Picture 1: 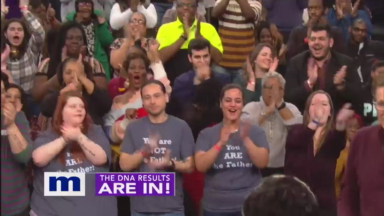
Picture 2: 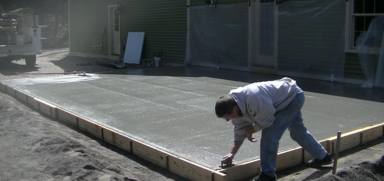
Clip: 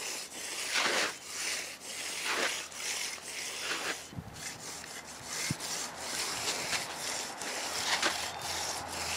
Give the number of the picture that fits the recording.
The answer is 2